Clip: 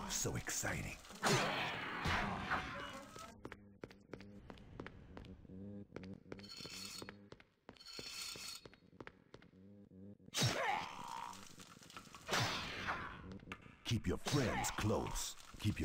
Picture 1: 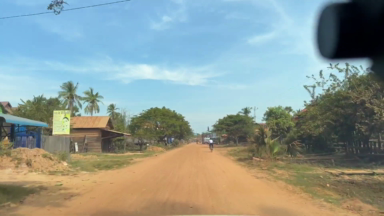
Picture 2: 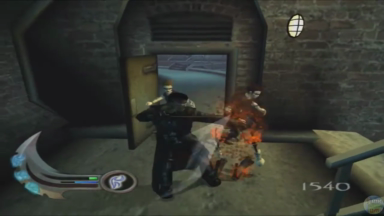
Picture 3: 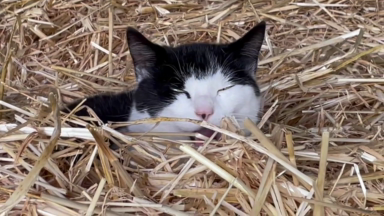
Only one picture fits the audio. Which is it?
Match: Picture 2